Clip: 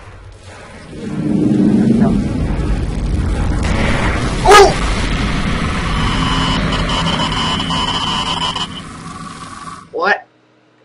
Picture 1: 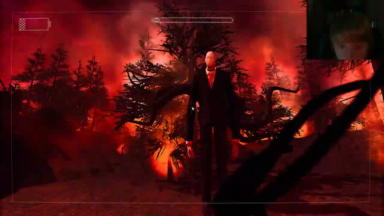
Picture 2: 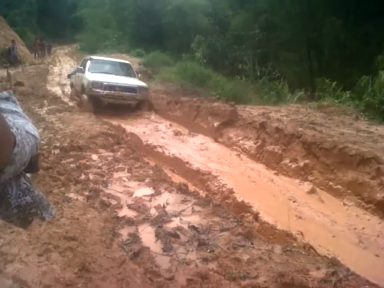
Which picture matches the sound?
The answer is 1